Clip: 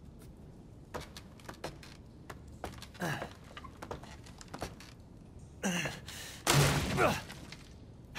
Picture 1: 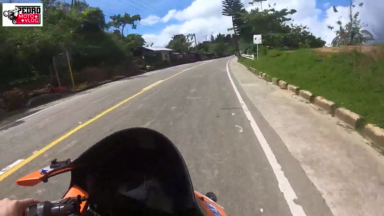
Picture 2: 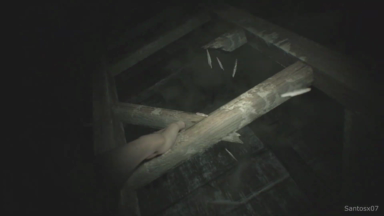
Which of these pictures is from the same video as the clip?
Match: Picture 2